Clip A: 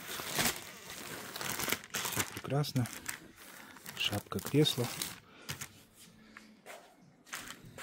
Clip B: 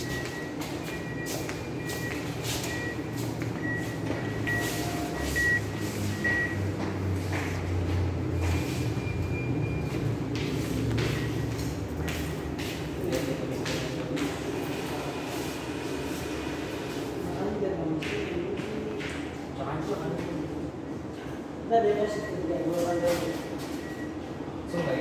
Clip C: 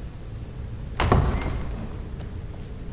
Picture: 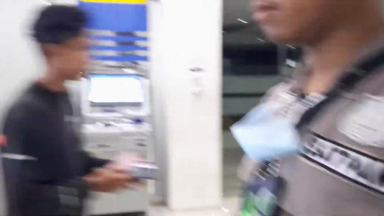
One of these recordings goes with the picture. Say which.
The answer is B